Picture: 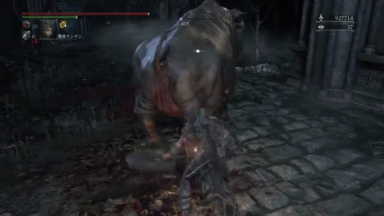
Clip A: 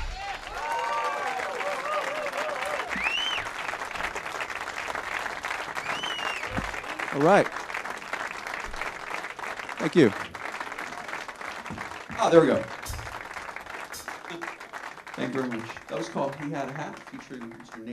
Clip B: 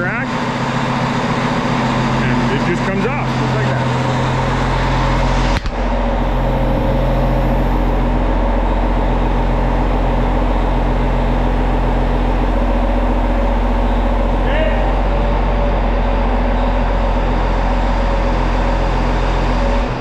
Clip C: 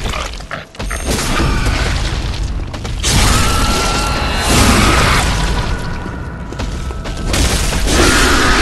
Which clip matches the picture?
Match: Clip C